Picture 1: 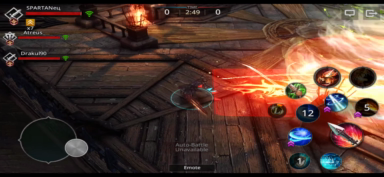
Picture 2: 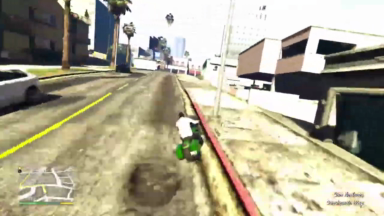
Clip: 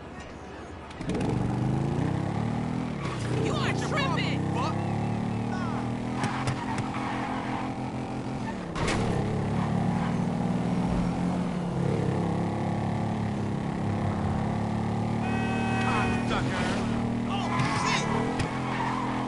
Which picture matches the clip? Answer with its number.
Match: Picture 2